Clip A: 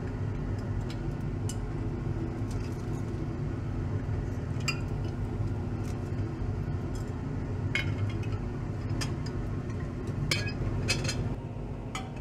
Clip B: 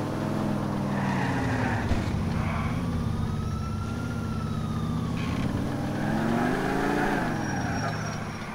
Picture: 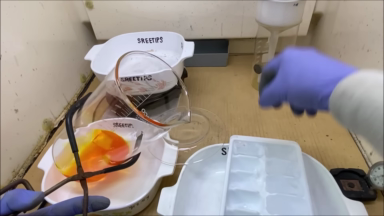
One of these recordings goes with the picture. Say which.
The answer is A